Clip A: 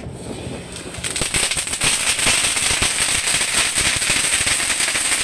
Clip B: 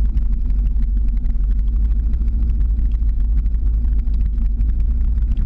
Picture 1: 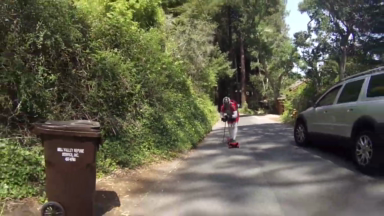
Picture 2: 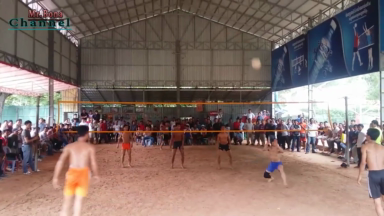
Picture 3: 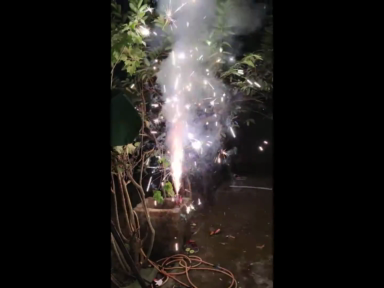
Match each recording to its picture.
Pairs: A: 3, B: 1